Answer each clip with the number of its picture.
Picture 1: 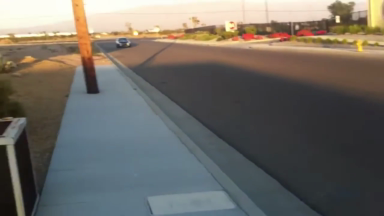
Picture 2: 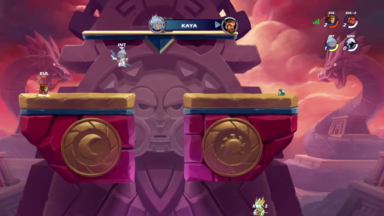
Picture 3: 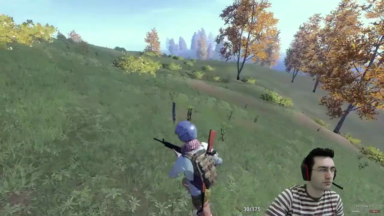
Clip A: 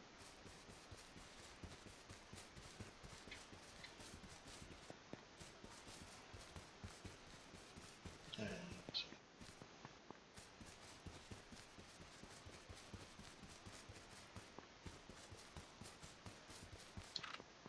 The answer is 3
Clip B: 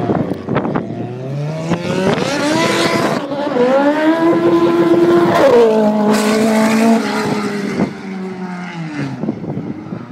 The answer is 1